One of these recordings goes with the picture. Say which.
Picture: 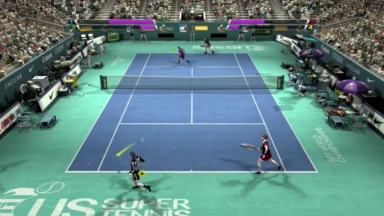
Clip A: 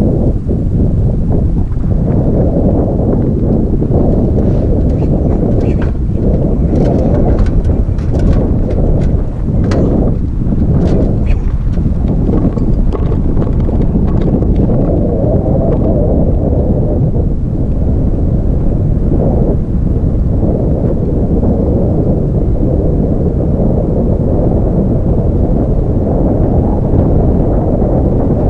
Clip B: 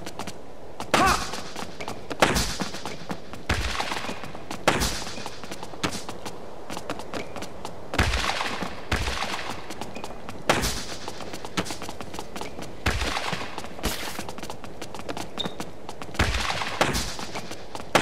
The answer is B